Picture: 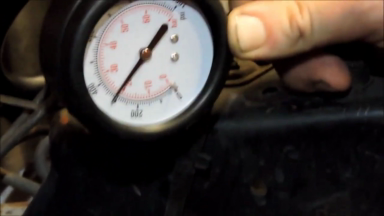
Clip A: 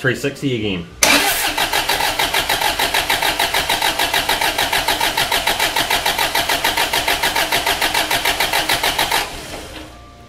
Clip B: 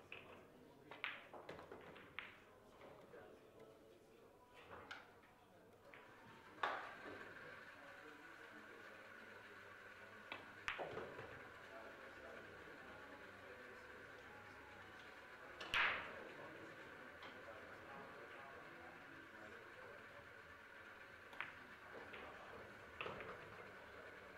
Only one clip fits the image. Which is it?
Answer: A